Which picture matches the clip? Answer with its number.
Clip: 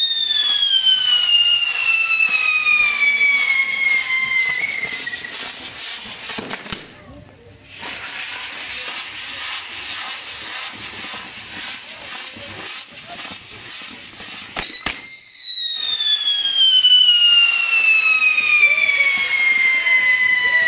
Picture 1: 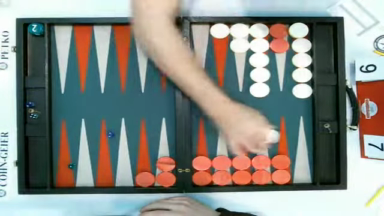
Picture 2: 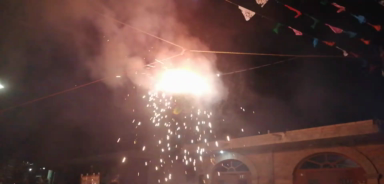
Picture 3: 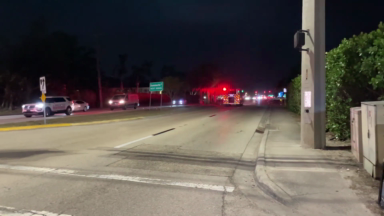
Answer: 2